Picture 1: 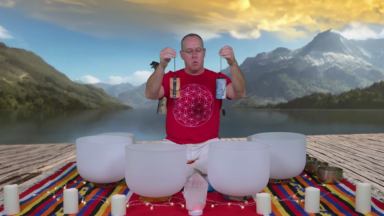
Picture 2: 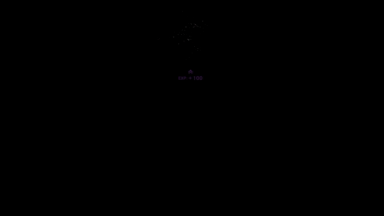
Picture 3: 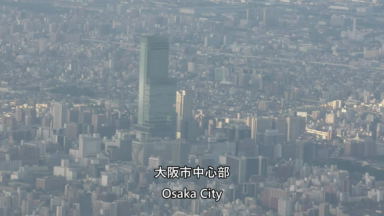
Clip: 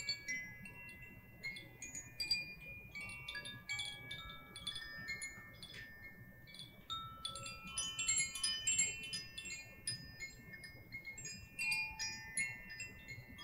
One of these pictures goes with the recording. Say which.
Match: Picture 1